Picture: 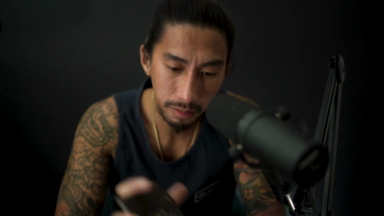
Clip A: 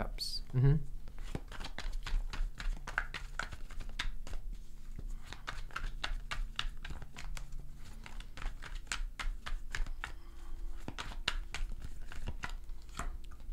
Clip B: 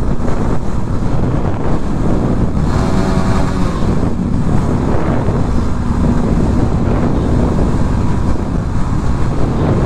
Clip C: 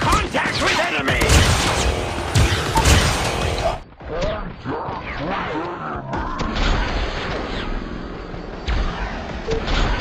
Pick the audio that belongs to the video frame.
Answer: A